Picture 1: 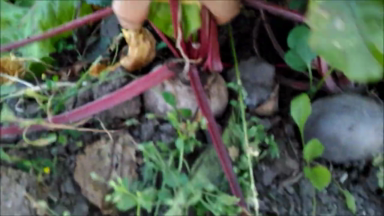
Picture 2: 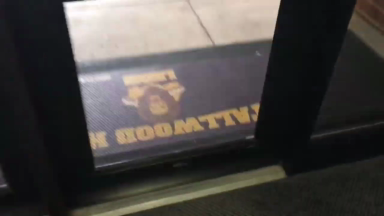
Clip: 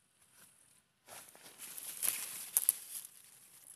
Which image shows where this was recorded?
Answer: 1